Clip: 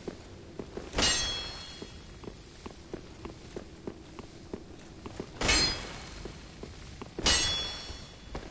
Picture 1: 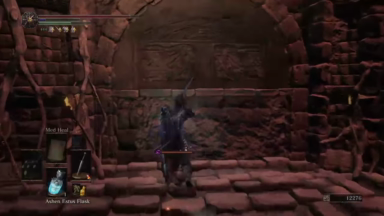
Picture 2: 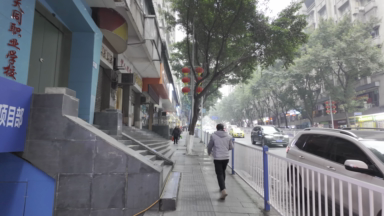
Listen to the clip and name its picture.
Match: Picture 1